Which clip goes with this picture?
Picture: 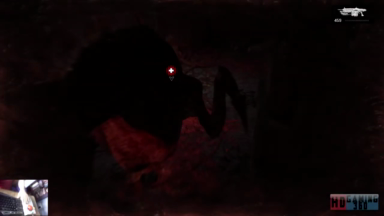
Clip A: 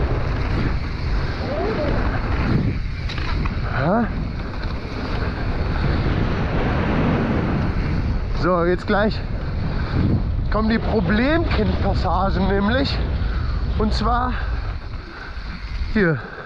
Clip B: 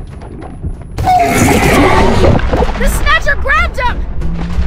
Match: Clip B